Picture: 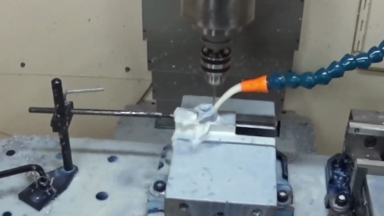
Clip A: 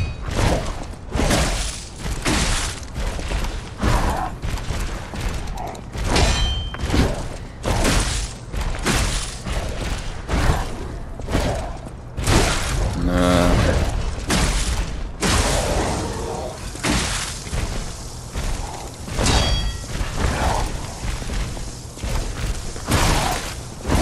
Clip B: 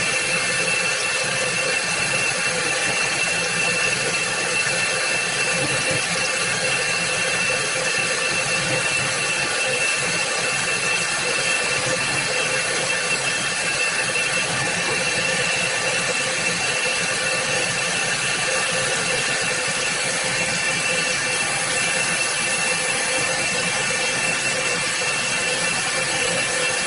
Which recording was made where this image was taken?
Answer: B